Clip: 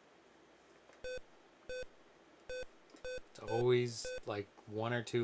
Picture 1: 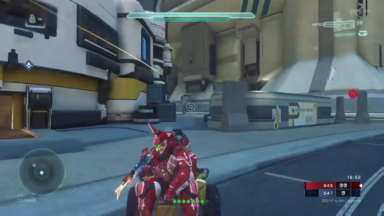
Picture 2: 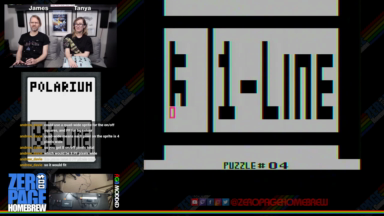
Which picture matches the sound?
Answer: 2